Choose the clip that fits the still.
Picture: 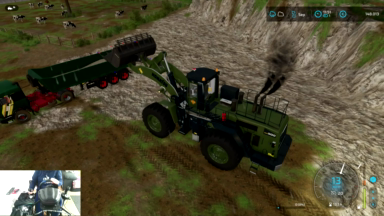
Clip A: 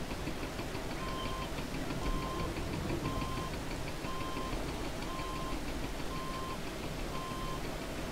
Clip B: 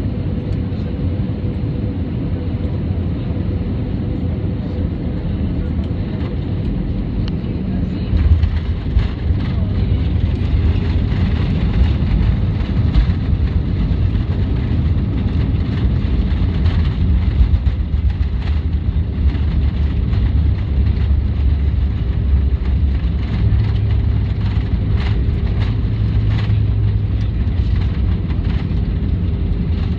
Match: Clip A